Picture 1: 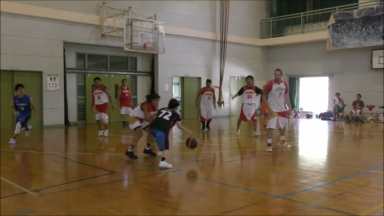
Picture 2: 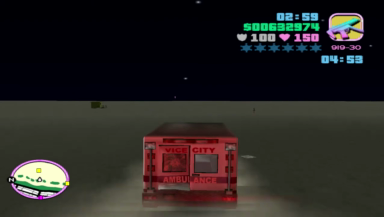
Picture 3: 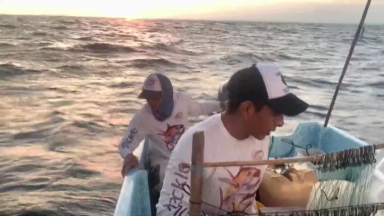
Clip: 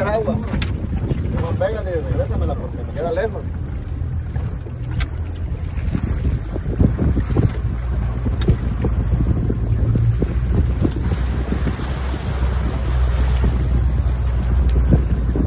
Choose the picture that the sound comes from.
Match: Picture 3